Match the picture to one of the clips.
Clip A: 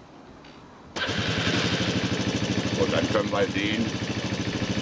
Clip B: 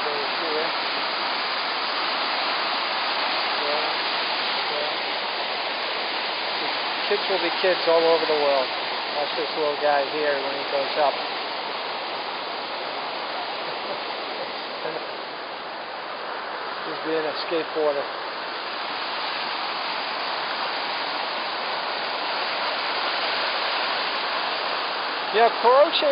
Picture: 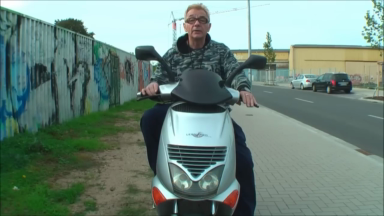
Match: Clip A